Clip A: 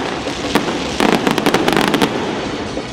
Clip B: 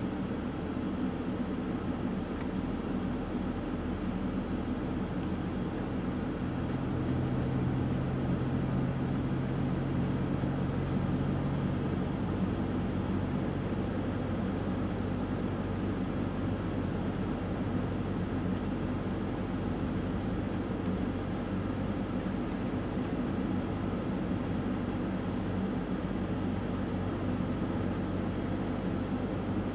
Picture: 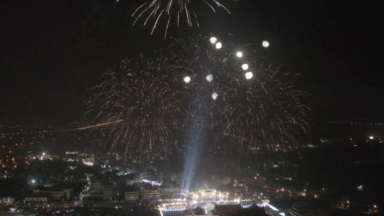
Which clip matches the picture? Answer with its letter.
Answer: A